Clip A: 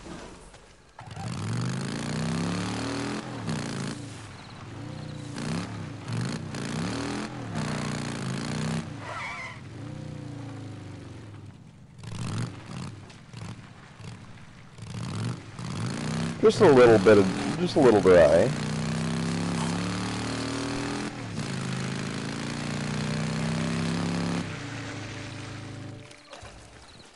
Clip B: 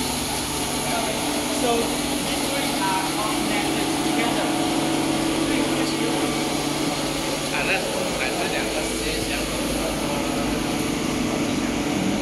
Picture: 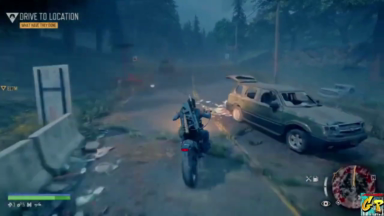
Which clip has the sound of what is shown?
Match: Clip A